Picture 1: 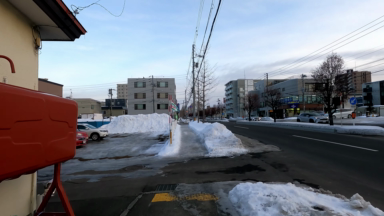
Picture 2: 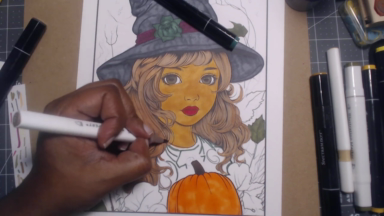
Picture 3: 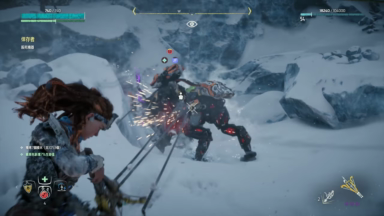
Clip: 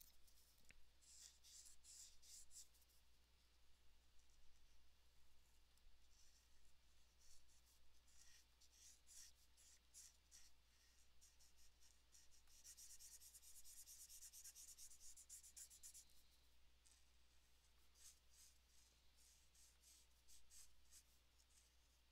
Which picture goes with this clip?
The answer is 2